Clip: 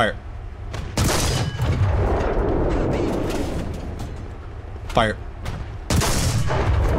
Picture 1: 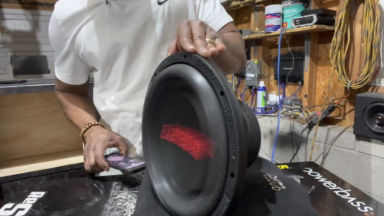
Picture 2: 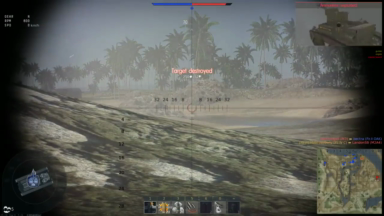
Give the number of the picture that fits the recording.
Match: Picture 2